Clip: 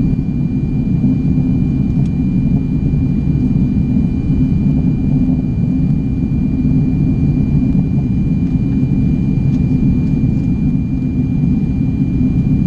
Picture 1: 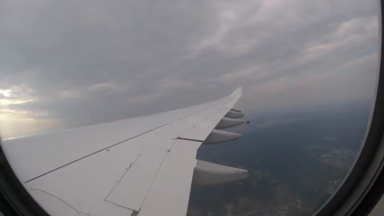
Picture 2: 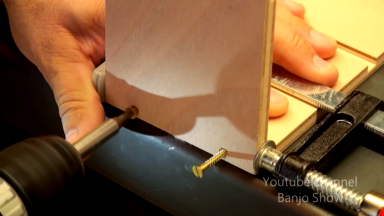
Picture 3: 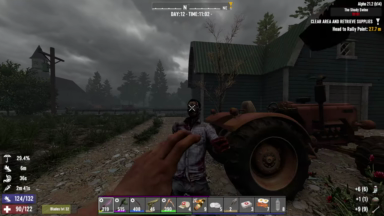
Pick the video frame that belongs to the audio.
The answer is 1